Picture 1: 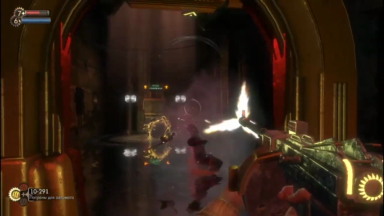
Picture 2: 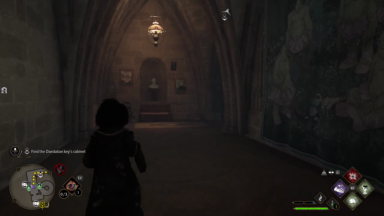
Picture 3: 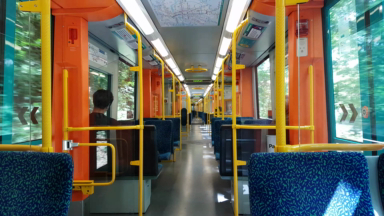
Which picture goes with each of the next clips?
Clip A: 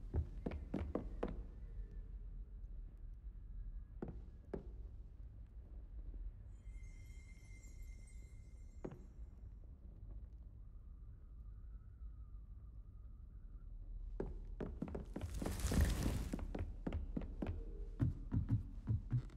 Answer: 2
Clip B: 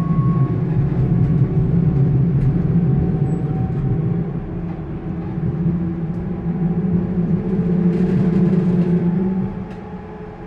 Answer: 3